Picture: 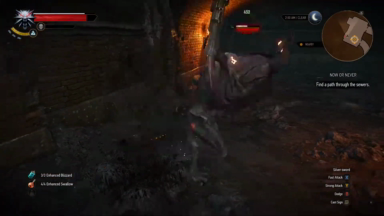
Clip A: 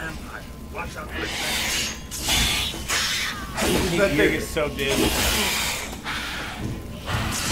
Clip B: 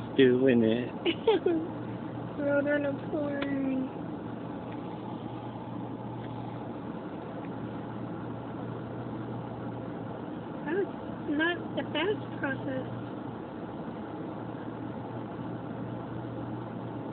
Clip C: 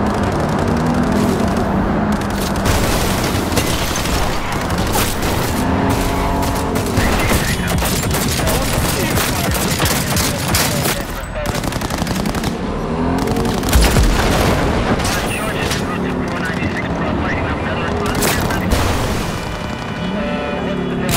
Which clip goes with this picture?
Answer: A